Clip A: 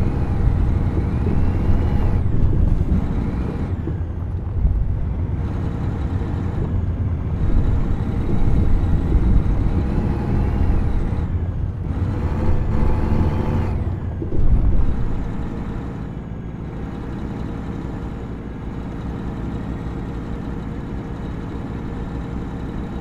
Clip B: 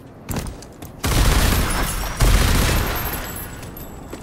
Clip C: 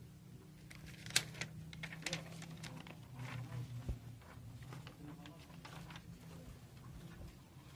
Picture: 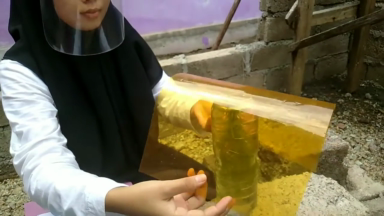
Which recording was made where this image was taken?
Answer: C